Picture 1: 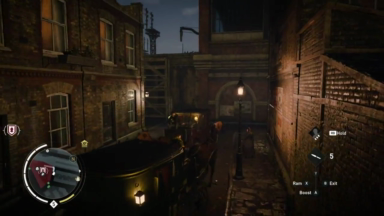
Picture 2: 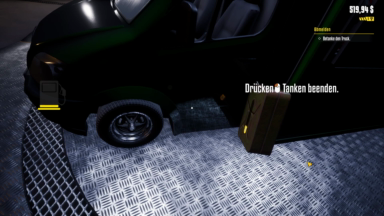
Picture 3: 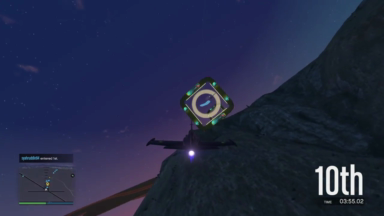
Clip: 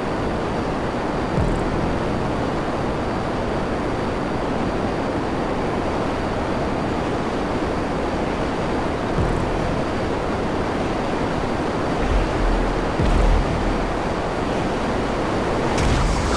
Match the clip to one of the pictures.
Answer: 3